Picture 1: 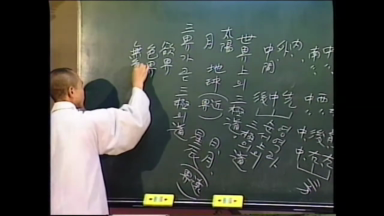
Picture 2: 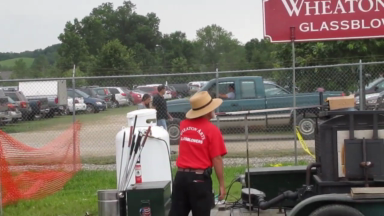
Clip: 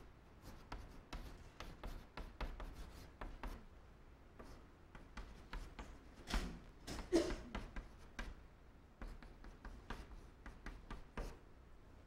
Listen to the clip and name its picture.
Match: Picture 1